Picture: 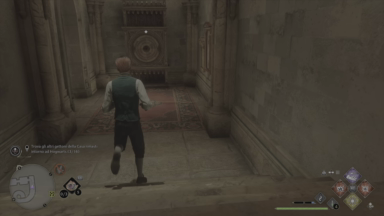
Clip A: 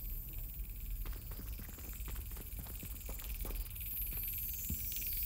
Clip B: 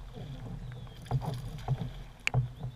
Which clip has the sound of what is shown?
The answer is A